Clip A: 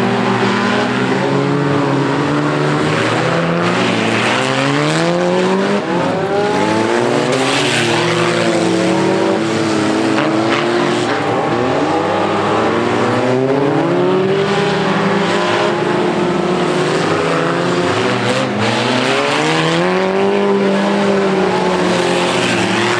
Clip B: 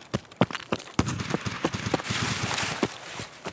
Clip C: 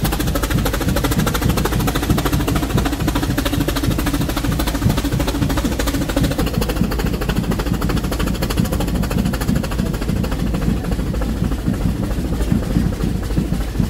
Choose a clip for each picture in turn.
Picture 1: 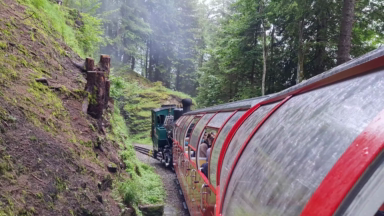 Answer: C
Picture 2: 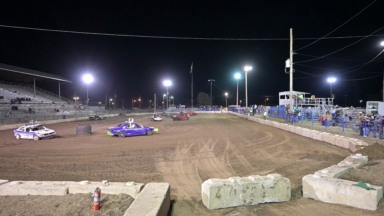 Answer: A